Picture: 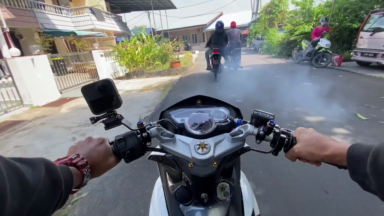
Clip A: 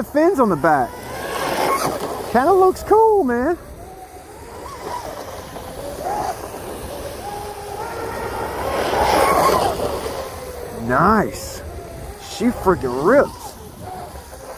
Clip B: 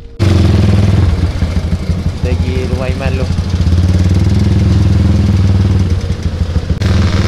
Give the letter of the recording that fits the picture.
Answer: B